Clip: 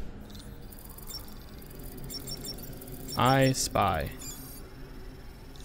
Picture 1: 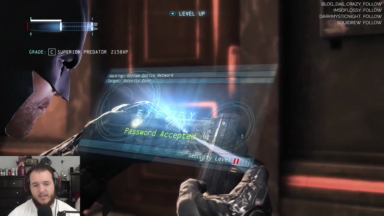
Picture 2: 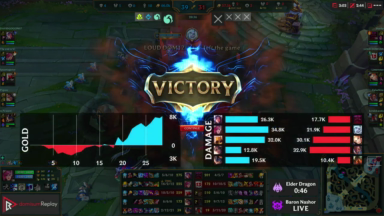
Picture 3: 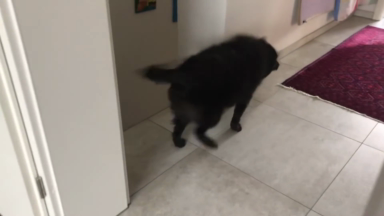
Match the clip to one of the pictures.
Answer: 1